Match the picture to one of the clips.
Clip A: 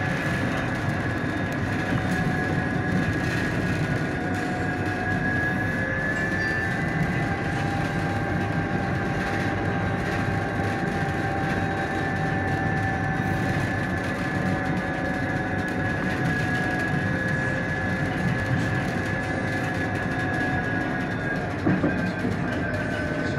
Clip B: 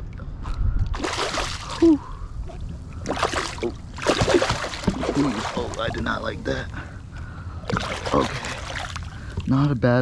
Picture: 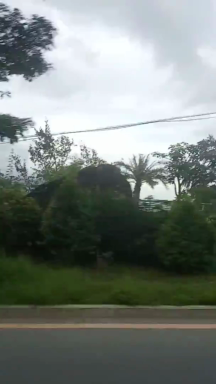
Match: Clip A